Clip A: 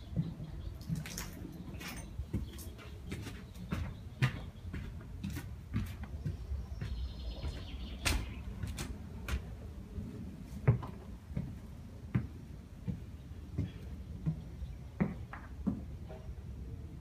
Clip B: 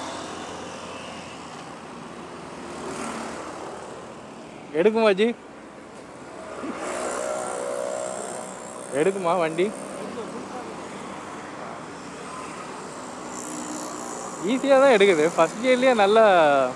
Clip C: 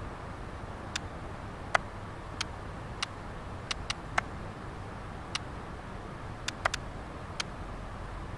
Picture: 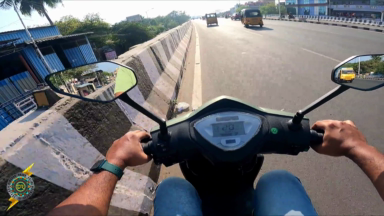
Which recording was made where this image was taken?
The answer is B